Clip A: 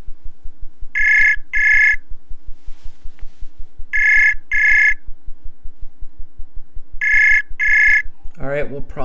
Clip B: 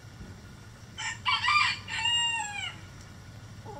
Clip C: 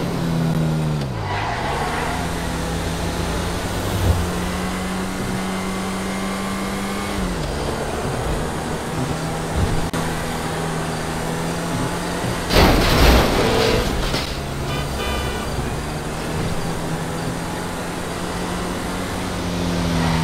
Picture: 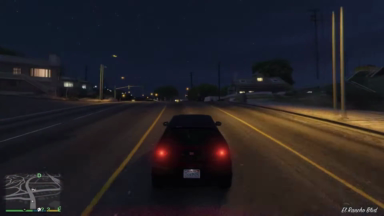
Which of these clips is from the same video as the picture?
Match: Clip C